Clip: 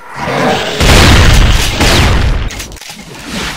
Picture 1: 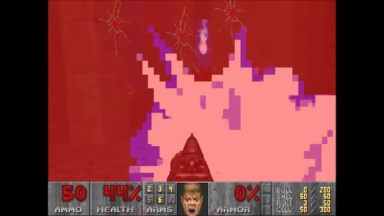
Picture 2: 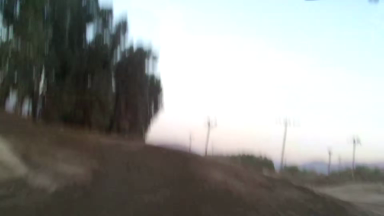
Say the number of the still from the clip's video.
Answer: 1